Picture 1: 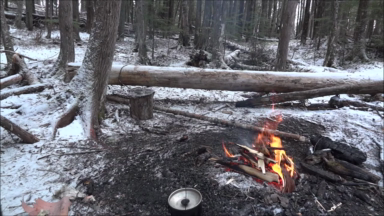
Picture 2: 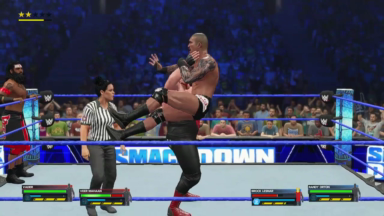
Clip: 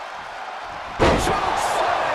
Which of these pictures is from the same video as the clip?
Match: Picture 2